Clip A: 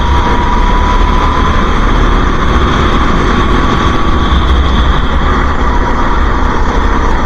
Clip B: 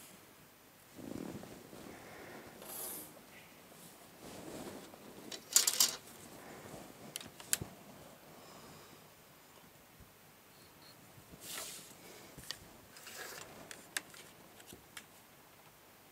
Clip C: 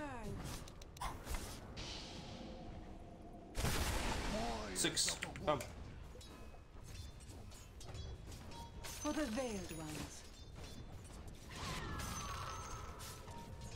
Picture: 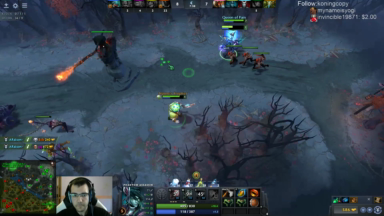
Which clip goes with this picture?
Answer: C